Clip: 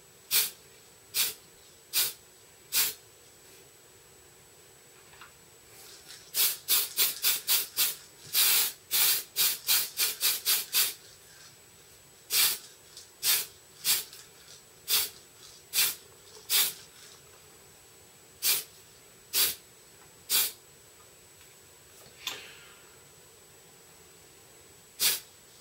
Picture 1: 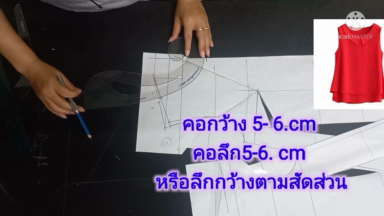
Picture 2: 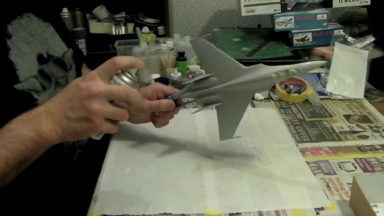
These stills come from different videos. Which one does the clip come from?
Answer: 2